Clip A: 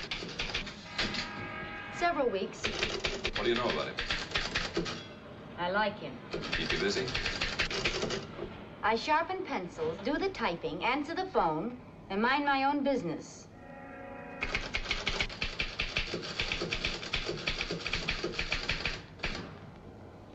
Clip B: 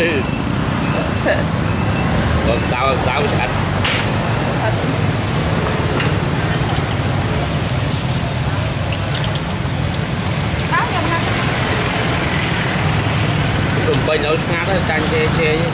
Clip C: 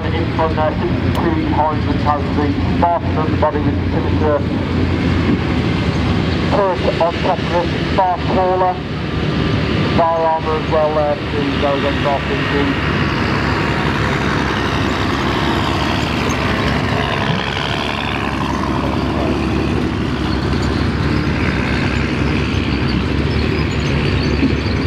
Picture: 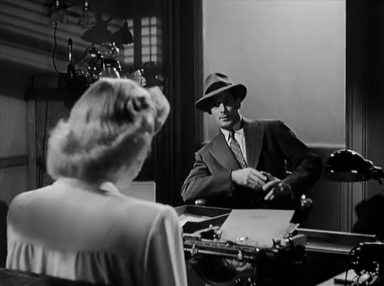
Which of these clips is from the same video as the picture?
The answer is A